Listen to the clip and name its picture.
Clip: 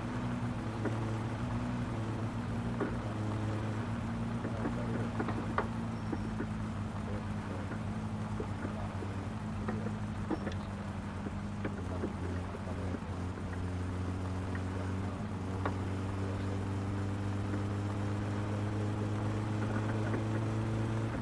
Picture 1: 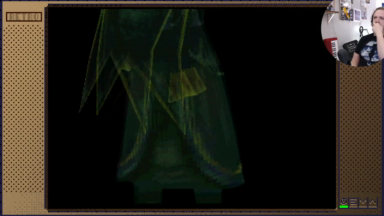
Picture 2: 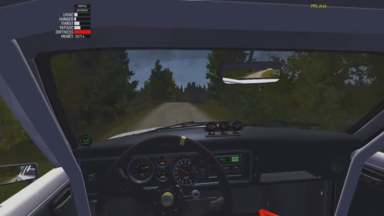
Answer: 2